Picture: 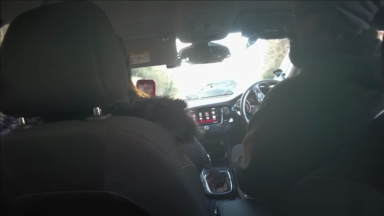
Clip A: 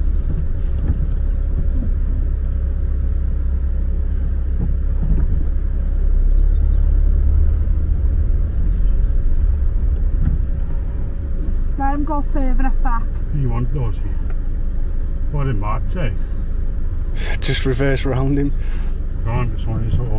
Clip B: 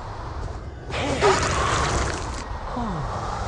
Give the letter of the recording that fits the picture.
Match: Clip A